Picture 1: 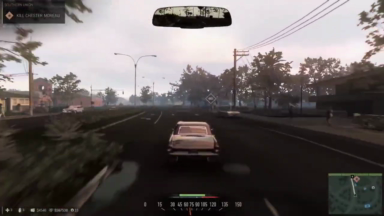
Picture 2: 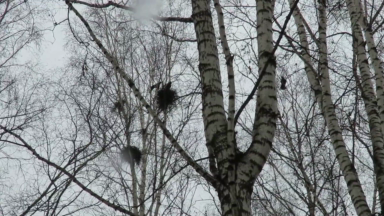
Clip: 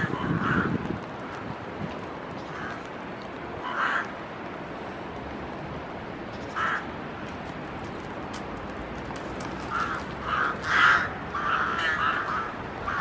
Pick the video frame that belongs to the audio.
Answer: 2